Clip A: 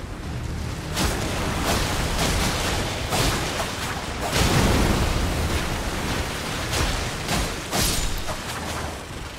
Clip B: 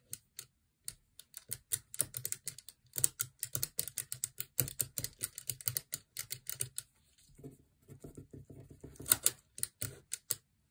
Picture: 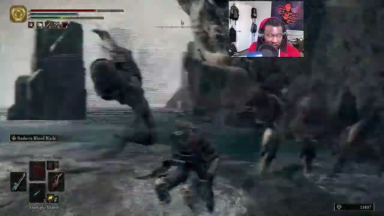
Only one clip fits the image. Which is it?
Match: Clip A